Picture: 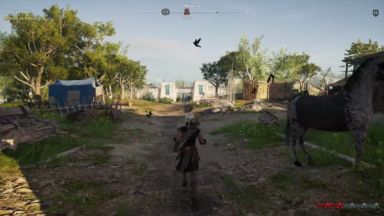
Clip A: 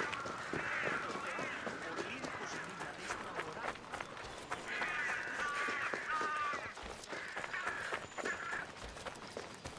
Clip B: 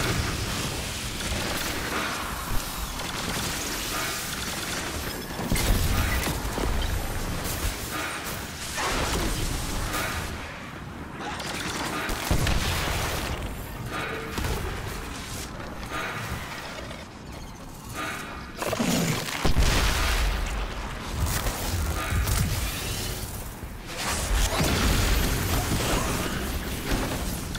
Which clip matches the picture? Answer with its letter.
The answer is A